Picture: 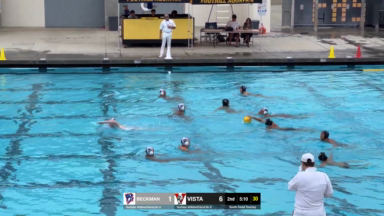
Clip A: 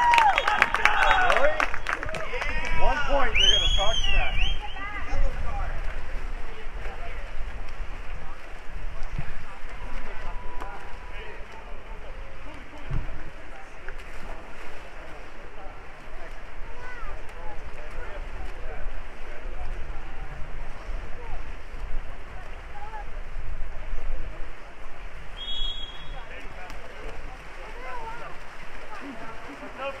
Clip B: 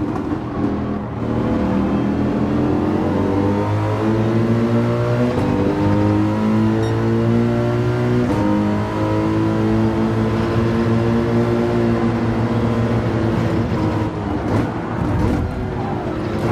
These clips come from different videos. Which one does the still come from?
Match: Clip A